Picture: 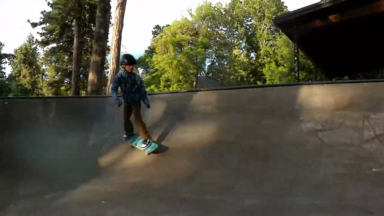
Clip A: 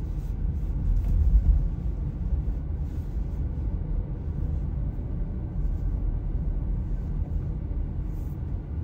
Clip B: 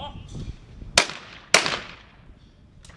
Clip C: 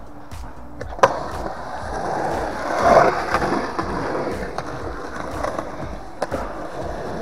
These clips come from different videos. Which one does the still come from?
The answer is C